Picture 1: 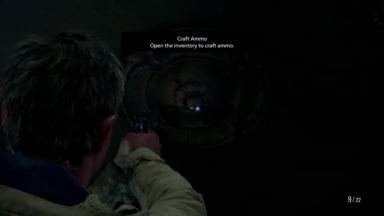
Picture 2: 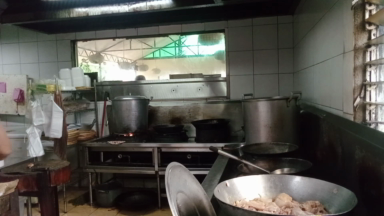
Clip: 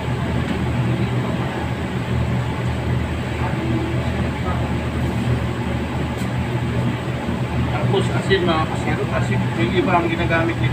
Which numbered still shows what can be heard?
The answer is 2